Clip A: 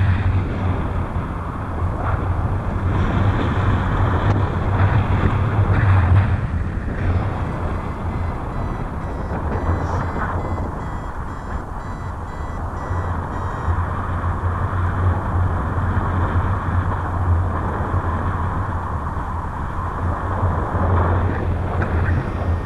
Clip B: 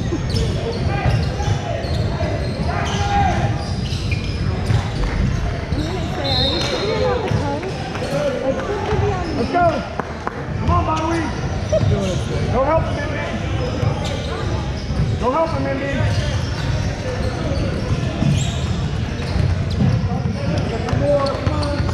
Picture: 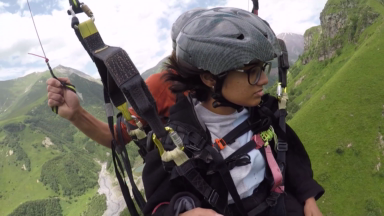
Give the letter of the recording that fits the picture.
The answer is A